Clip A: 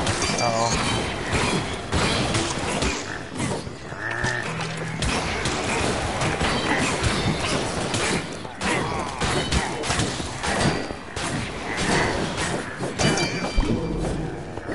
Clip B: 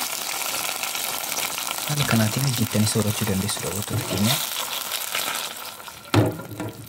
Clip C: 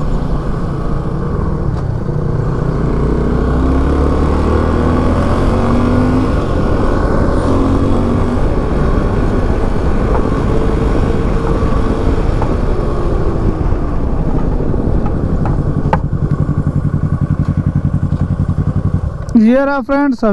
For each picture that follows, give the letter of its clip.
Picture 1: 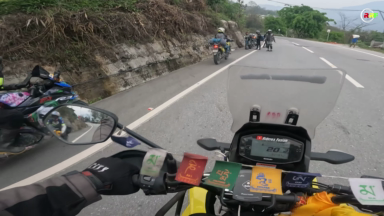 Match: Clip C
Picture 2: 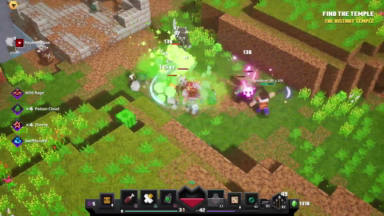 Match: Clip A